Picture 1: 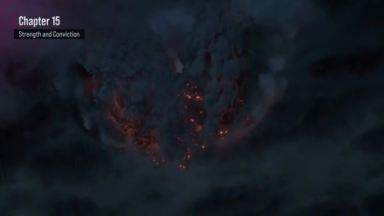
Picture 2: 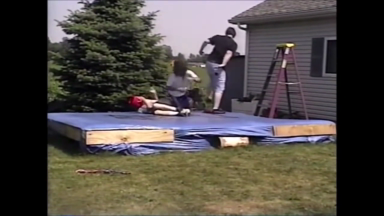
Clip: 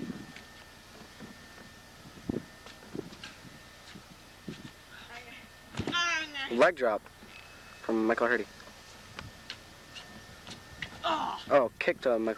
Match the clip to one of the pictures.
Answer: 2